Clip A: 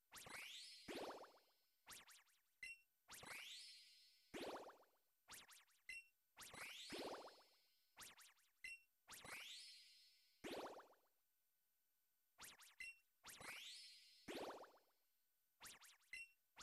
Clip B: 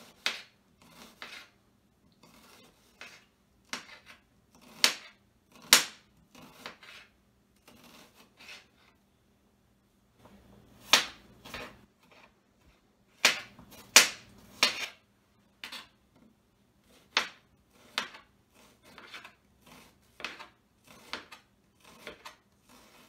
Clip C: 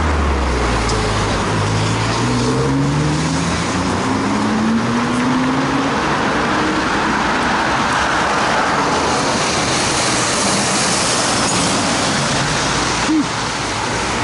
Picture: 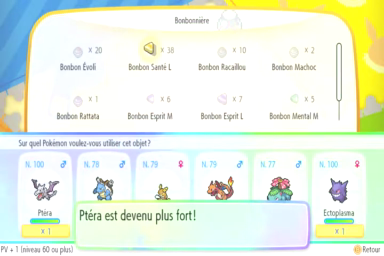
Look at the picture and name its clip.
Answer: A